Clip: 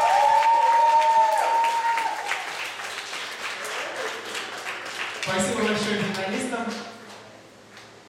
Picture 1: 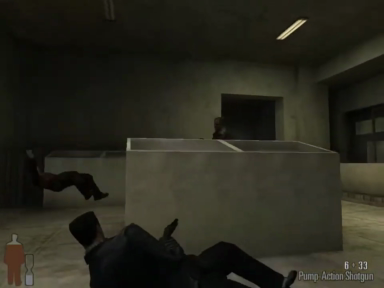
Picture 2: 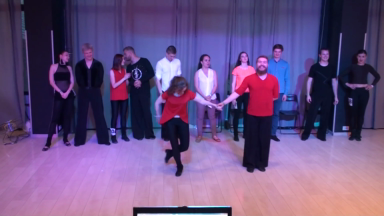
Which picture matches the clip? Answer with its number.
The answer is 2